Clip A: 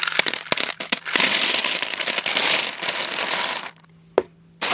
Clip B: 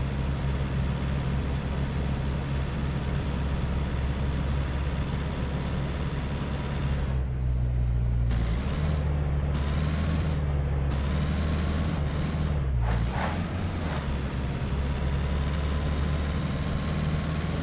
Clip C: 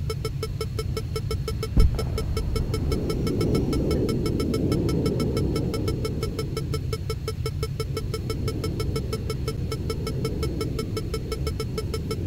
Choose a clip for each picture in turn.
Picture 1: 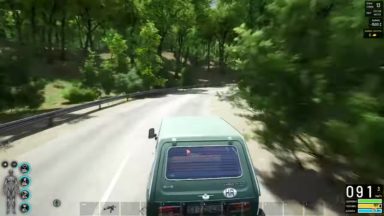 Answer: B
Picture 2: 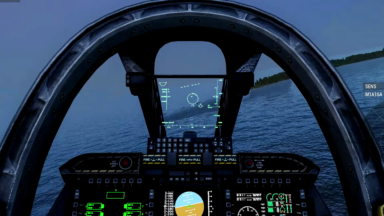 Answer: C